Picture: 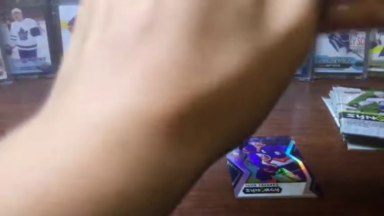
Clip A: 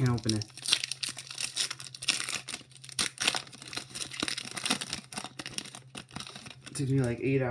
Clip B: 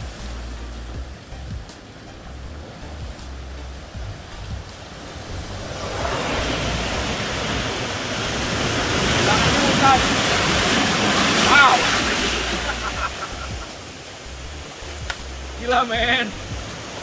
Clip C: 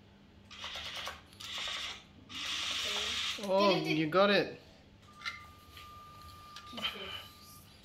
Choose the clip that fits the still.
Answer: A